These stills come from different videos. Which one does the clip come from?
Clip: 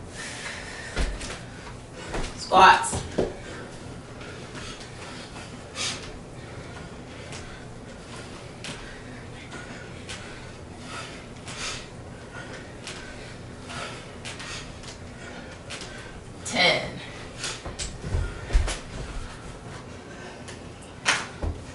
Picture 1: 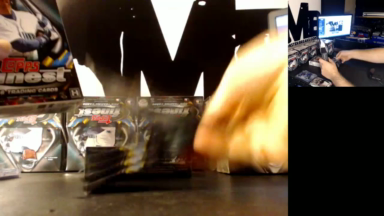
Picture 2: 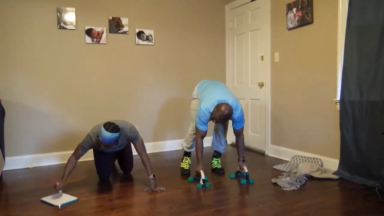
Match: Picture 2